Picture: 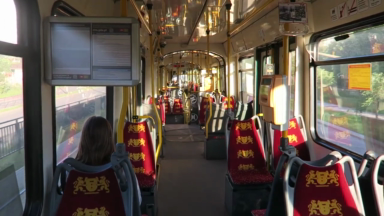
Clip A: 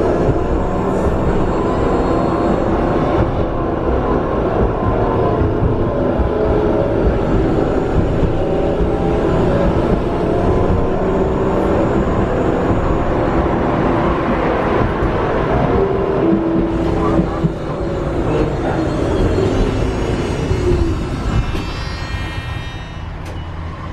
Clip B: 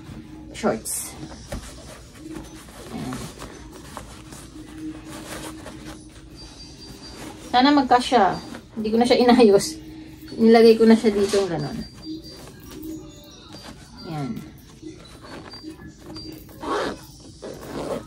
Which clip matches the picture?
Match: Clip A